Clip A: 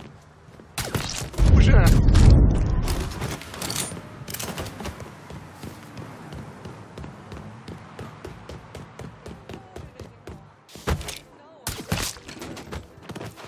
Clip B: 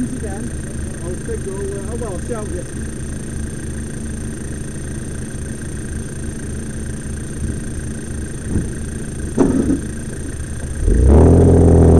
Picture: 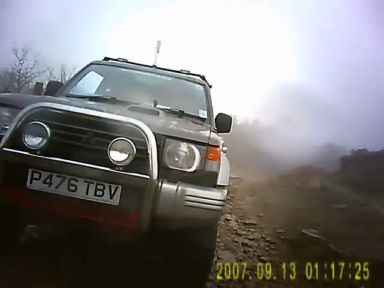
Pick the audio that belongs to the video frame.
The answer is B